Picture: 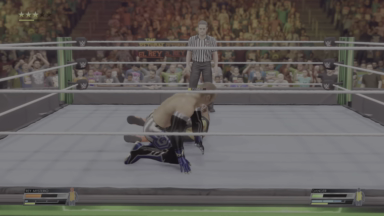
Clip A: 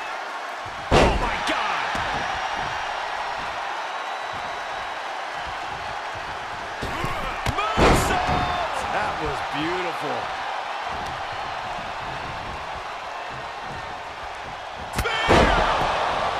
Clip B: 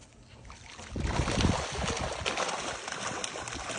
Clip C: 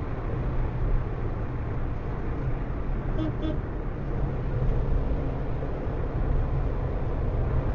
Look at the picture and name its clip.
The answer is A